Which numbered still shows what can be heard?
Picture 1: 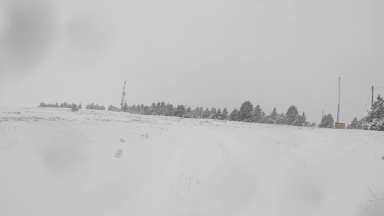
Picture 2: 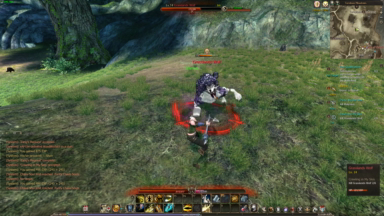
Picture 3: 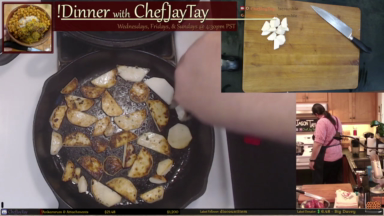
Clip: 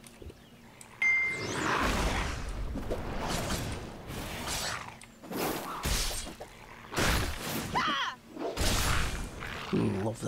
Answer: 2